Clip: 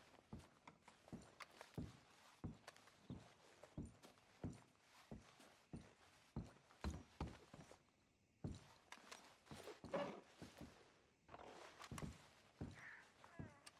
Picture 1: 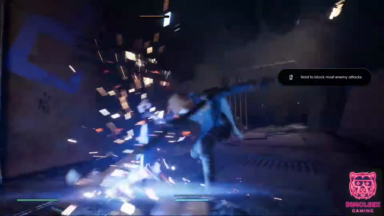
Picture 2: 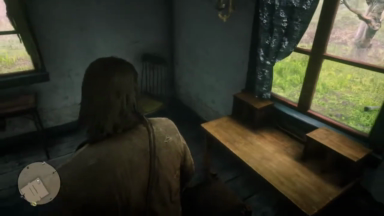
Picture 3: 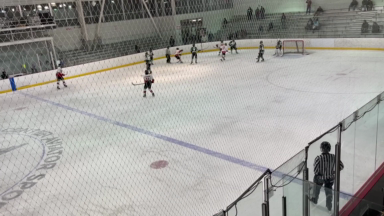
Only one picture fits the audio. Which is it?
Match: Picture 2